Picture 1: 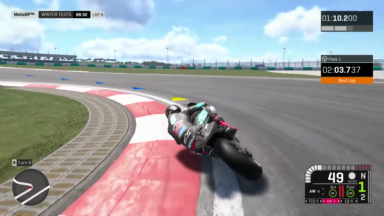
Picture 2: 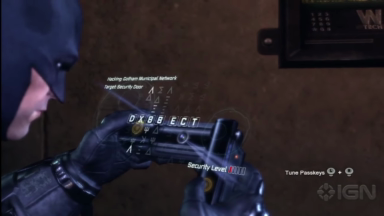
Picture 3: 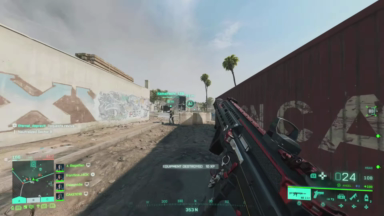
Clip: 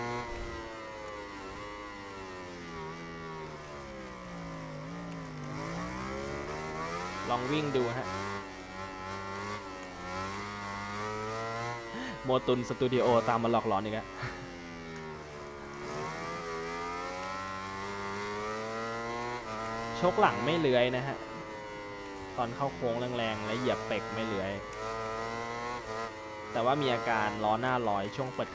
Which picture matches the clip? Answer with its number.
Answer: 1